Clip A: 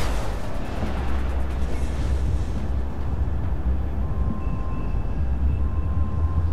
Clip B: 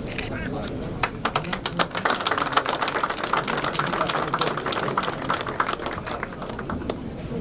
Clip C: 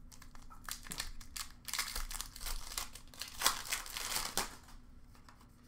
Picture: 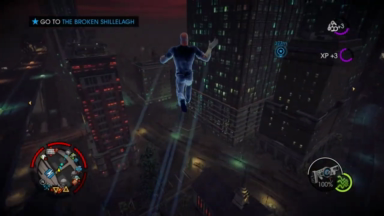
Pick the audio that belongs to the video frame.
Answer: A